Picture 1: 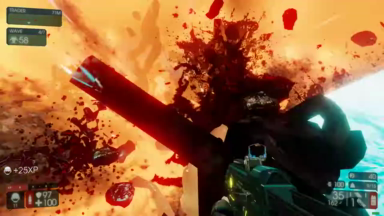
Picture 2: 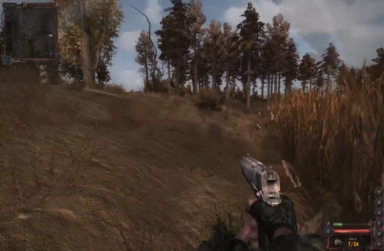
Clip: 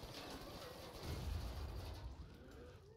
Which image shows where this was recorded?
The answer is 1